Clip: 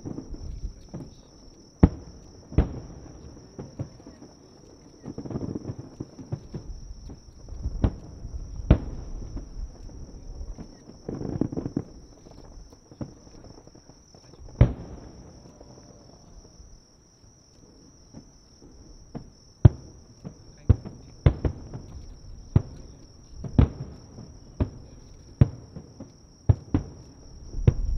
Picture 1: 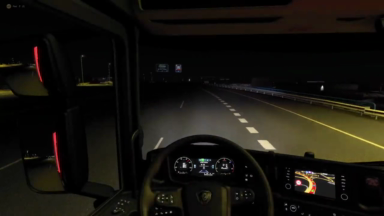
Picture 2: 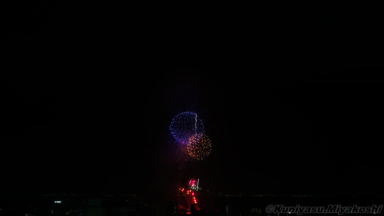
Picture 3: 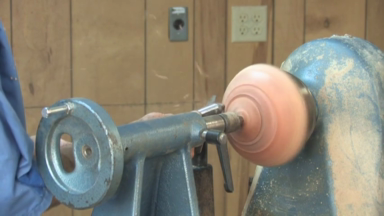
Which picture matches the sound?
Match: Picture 2